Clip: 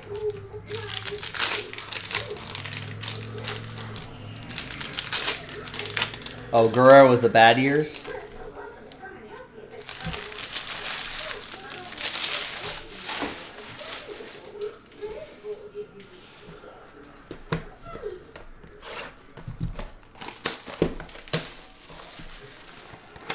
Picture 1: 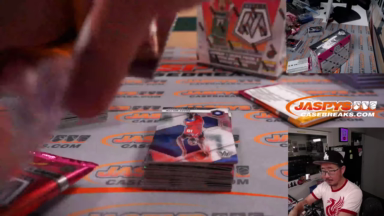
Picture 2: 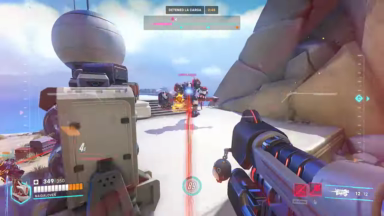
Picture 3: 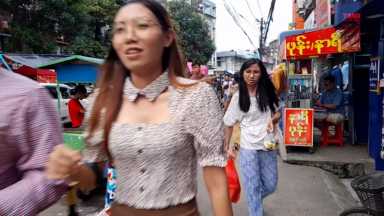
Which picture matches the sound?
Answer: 1